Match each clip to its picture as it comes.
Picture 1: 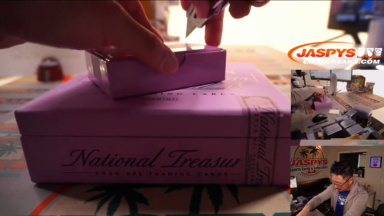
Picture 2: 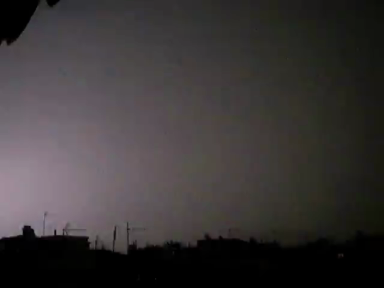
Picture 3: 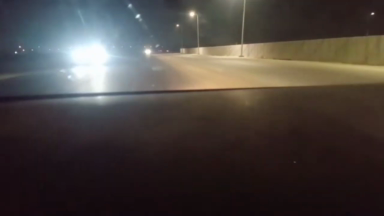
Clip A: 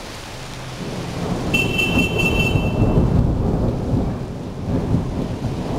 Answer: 2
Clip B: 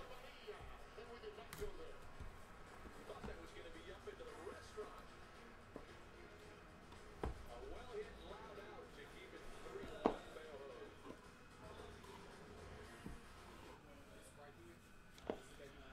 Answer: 1